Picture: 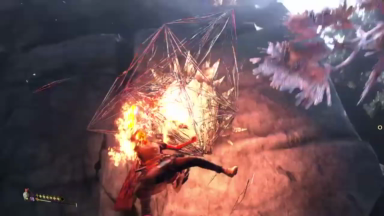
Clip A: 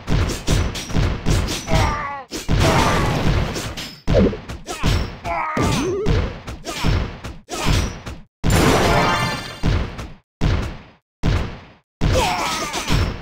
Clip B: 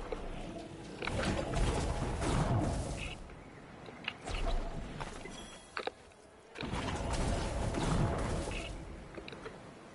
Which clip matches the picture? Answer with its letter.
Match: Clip B